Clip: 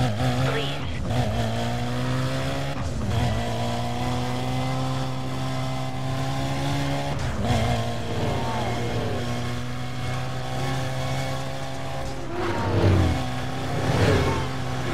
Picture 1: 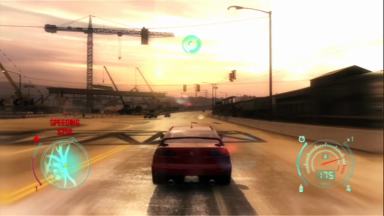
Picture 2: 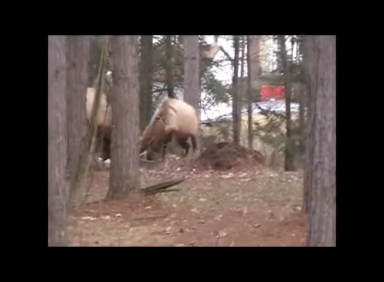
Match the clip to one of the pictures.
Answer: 1